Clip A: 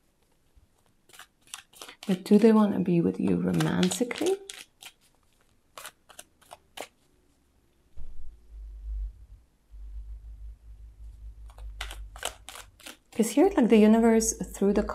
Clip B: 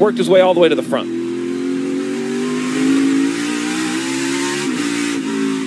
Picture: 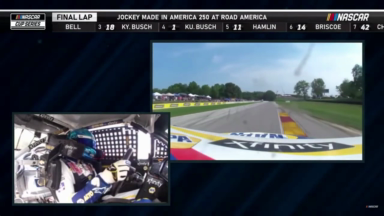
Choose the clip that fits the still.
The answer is B